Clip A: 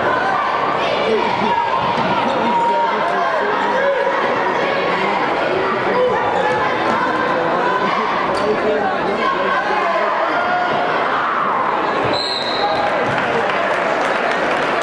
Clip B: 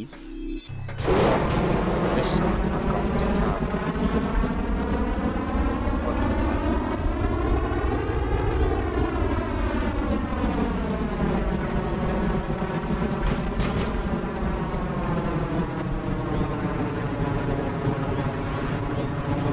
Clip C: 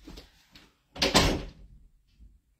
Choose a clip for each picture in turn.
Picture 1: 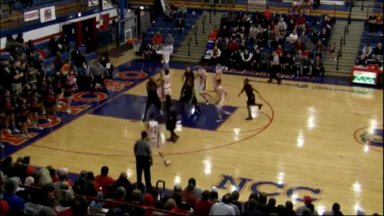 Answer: A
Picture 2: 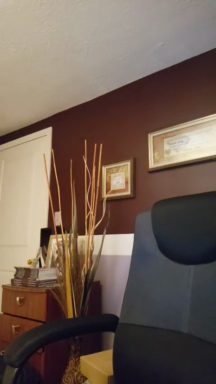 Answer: C